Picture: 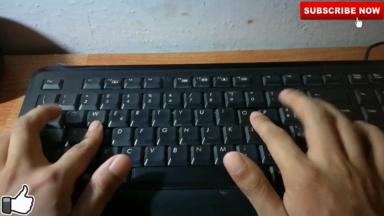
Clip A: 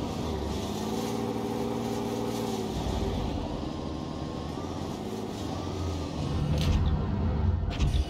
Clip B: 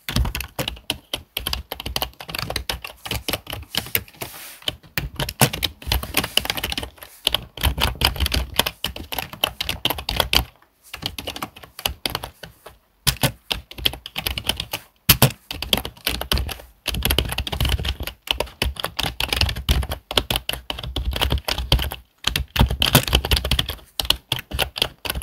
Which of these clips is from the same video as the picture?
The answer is B